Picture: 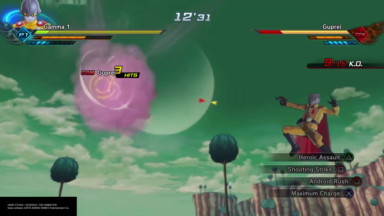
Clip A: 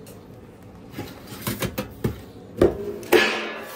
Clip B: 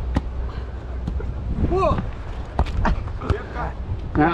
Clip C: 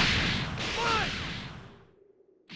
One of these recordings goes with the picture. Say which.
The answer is C